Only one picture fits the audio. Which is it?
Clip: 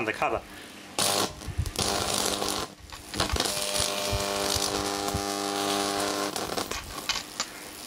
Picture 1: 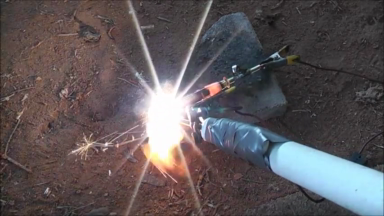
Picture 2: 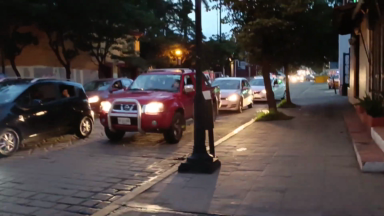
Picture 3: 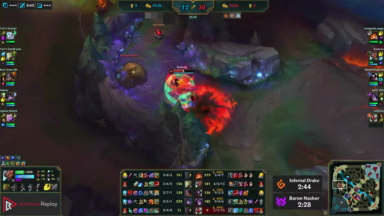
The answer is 1